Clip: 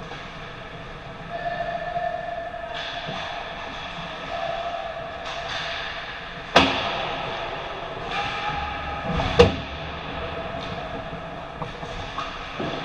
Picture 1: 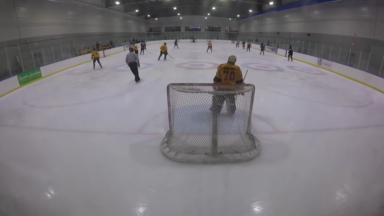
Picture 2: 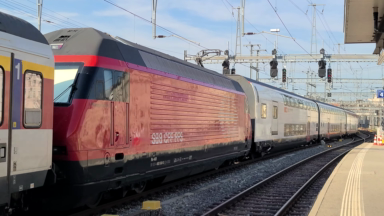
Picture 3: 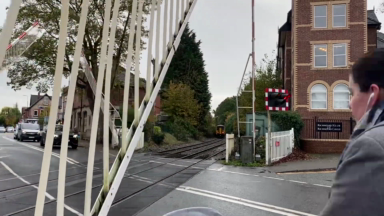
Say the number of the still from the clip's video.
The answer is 1